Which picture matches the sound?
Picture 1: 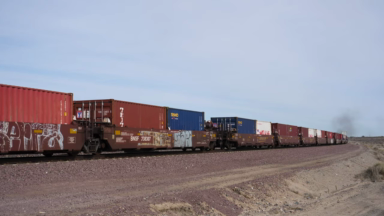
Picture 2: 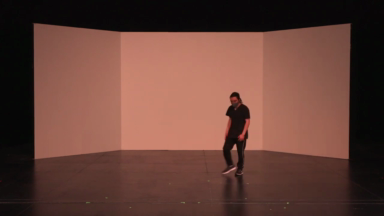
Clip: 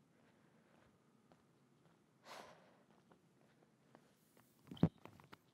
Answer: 2